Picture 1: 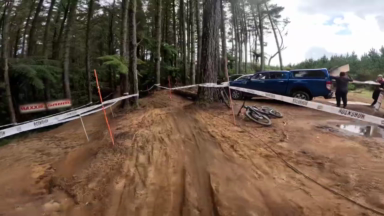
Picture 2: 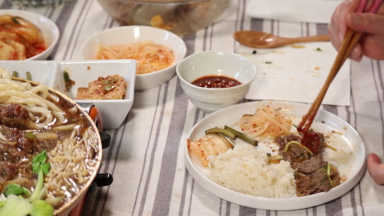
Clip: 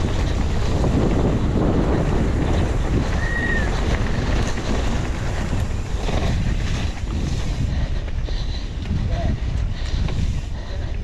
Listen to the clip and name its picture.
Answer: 1